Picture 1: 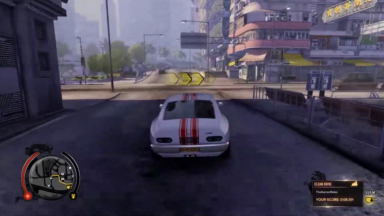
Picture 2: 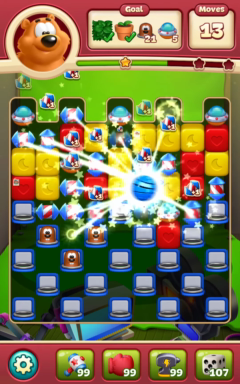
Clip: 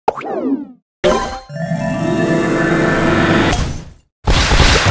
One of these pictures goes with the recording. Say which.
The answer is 2